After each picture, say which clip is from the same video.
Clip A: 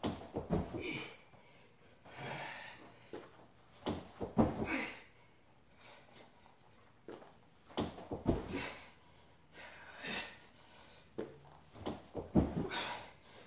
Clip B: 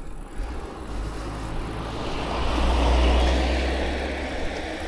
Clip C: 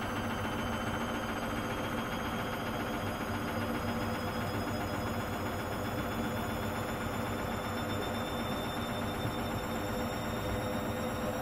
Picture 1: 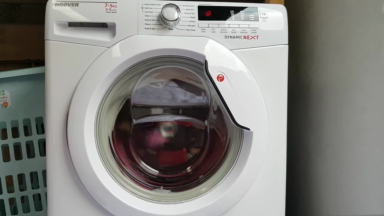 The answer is C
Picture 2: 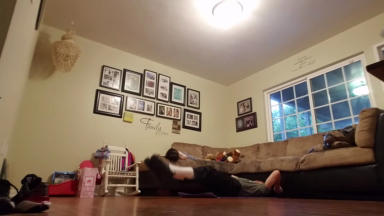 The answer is A